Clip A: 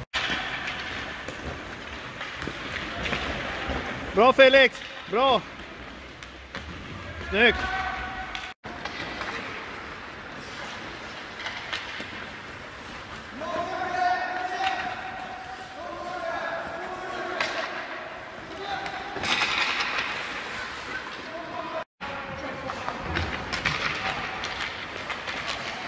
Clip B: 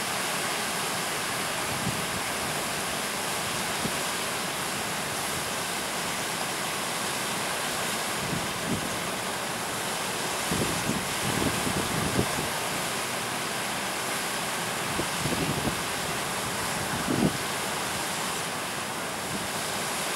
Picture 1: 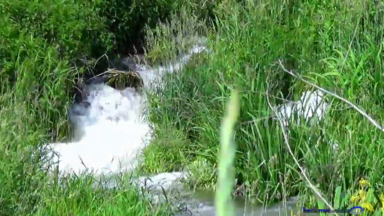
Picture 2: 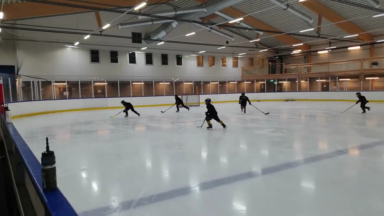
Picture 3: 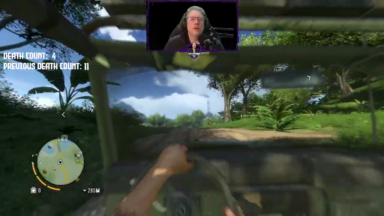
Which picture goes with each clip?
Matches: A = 2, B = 1